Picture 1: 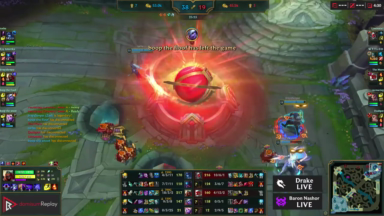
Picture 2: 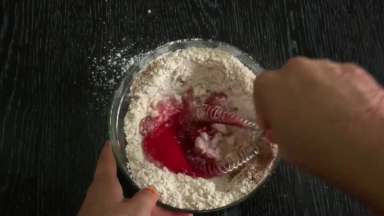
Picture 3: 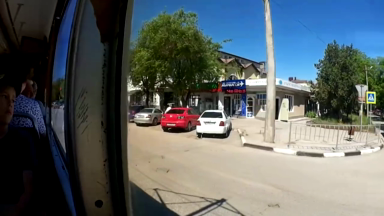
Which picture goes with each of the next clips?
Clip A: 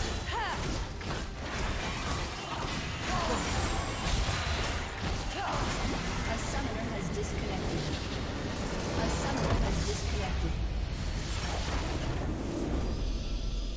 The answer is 1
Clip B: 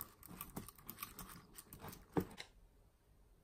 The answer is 2